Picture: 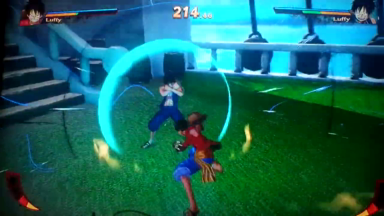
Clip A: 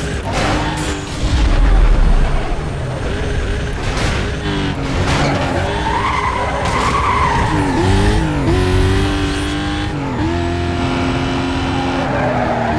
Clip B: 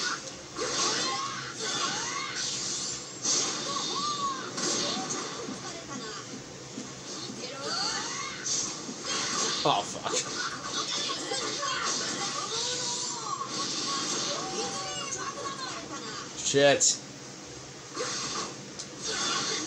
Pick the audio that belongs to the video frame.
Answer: B